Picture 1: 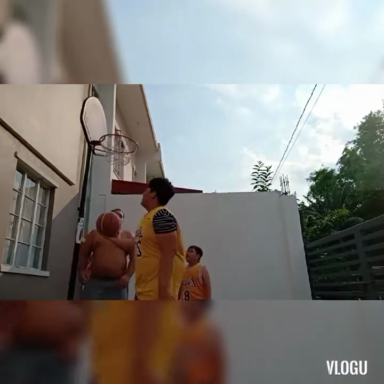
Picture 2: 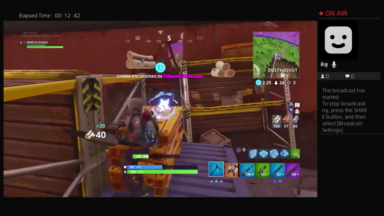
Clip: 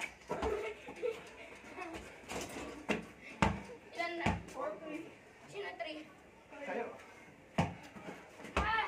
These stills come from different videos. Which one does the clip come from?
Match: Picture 1